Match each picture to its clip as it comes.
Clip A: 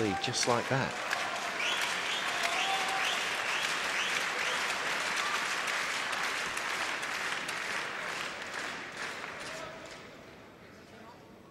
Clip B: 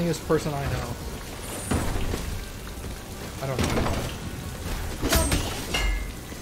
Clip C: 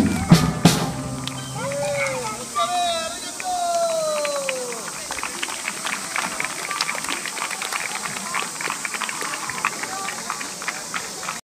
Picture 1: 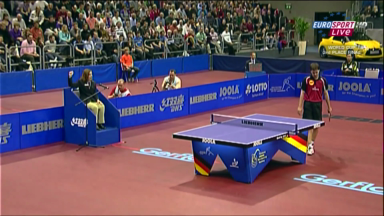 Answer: A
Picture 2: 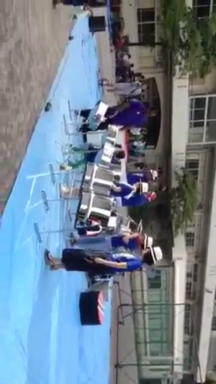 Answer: C